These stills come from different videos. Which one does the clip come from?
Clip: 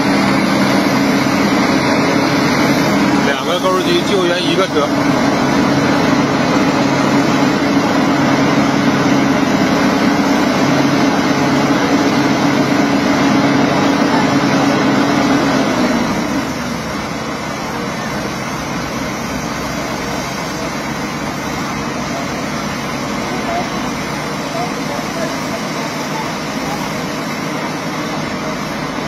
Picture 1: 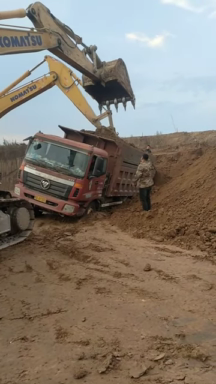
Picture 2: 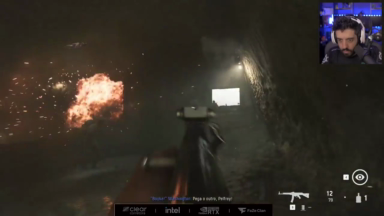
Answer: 1